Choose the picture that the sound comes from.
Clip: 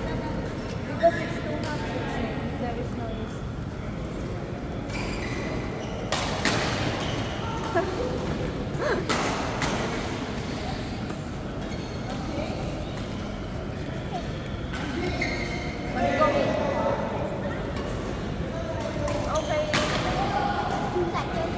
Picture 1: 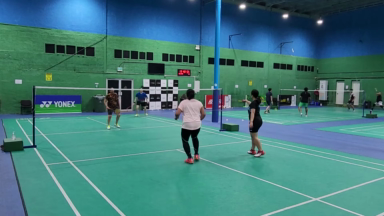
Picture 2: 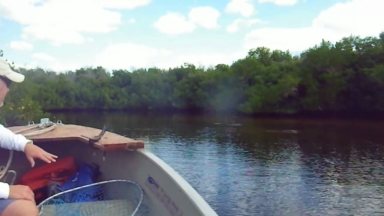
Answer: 1